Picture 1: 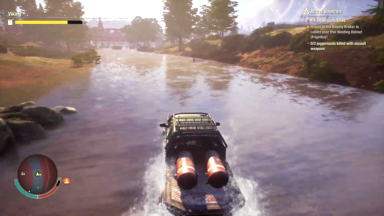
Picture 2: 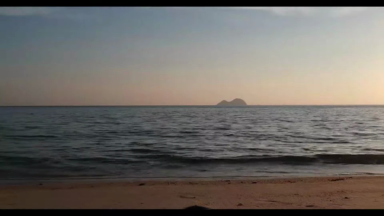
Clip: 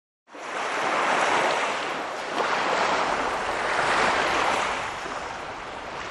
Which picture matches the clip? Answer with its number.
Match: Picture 2